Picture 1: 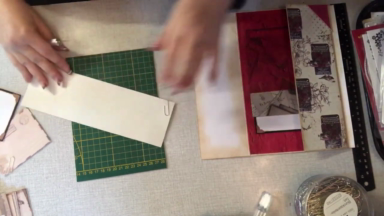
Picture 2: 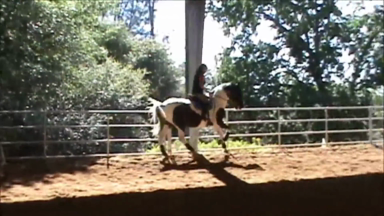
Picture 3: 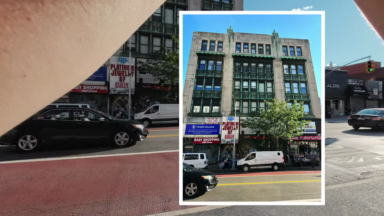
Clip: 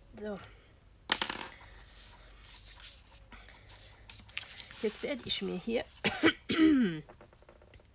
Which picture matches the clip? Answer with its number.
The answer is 1